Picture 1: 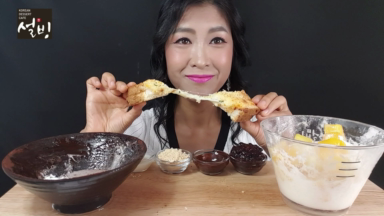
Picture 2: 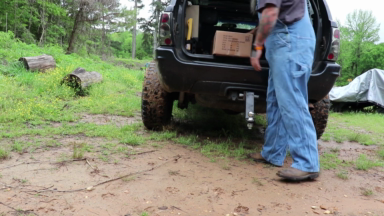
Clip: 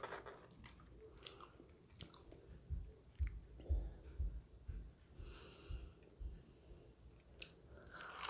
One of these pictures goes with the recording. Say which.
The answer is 1